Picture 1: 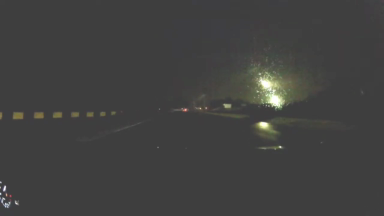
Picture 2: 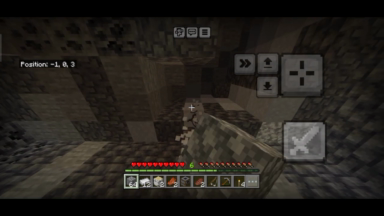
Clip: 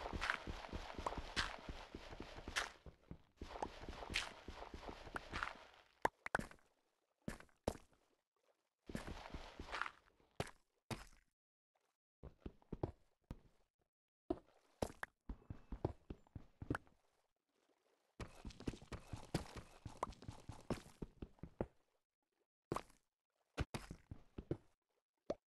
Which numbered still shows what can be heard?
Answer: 2